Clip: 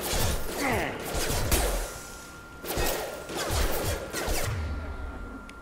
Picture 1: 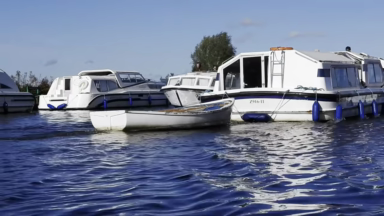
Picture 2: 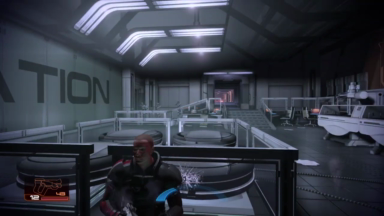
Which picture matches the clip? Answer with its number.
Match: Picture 2